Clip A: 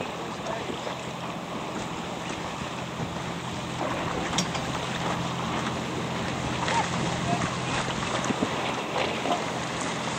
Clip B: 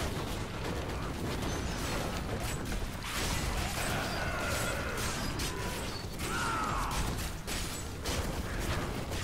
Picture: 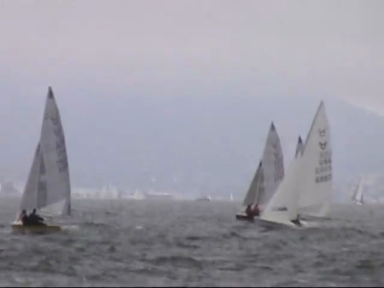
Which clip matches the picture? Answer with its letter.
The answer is A